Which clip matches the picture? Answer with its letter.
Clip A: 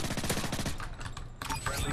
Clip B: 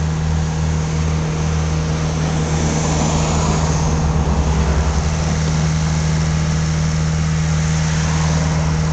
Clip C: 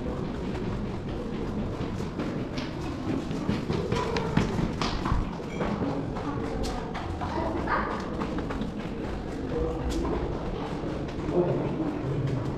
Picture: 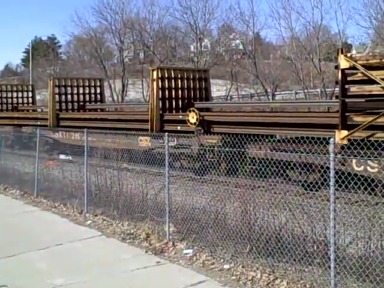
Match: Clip B